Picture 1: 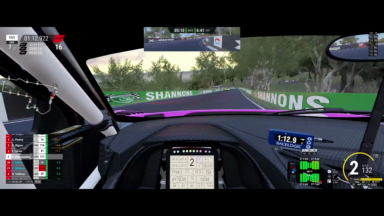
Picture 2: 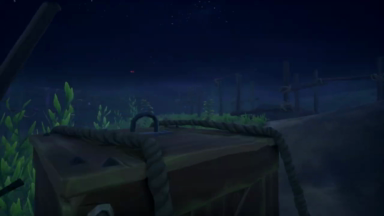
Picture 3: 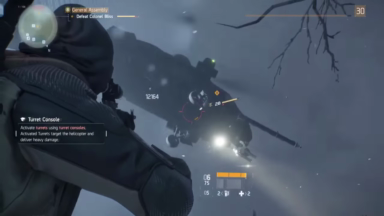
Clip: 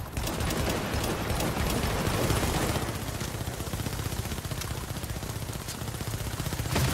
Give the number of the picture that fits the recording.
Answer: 3